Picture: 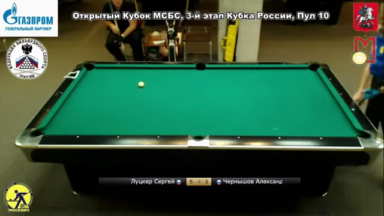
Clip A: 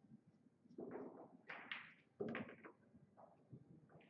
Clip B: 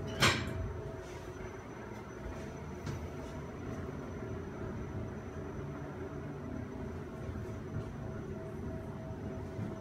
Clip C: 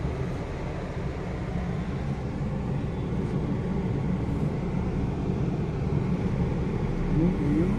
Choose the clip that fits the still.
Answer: A